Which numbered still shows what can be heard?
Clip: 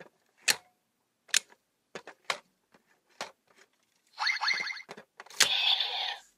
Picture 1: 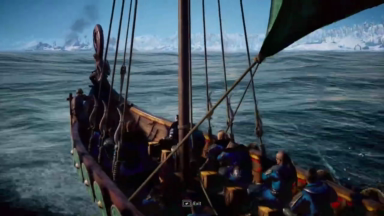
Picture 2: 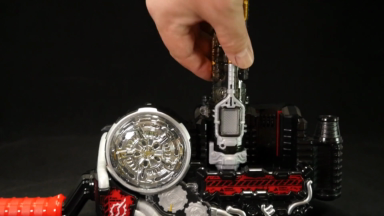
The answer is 2